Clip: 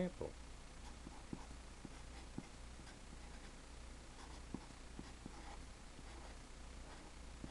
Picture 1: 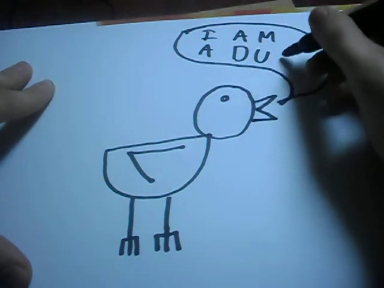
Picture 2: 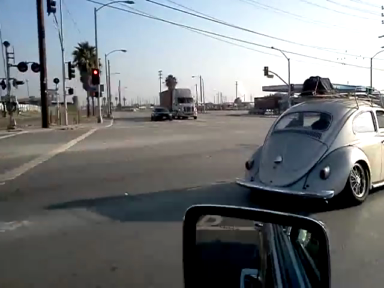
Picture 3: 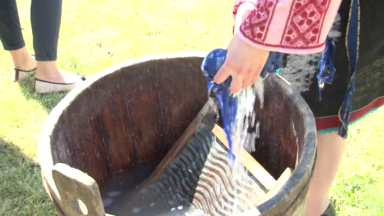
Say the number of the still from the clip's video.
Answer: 1